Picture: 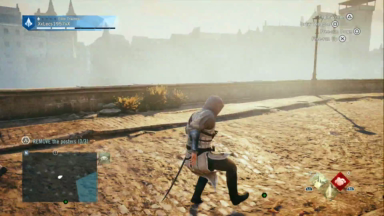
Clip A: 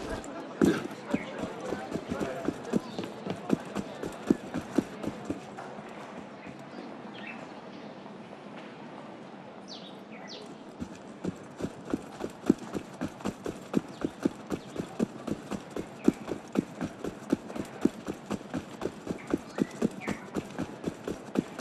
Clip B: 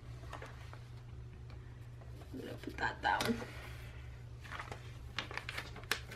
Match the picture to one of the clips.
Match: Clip A